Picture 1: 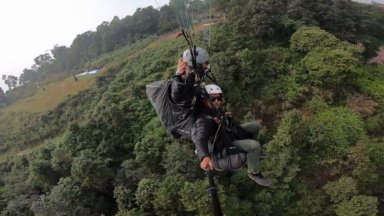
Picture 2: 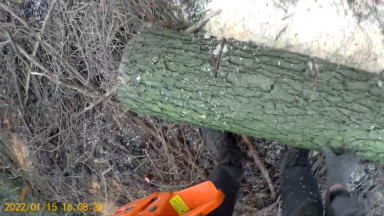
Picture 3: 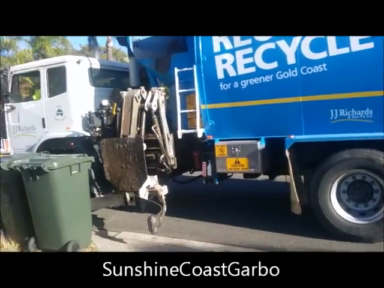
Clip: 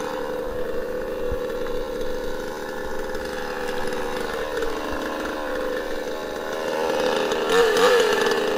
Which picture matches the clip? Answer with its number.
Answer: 2